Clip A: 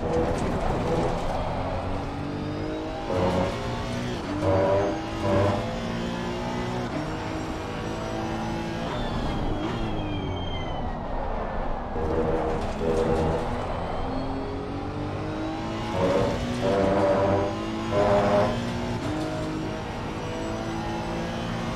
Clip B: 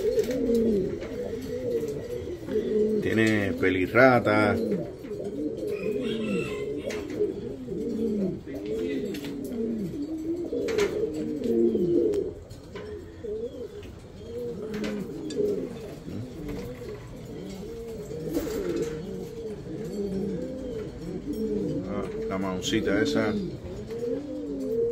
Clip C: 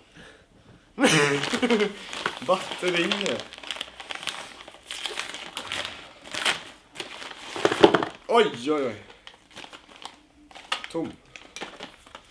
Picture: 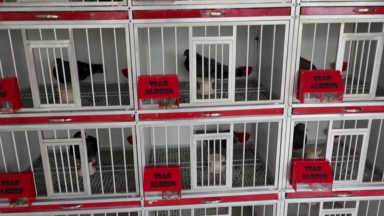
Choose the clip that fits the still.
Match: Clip B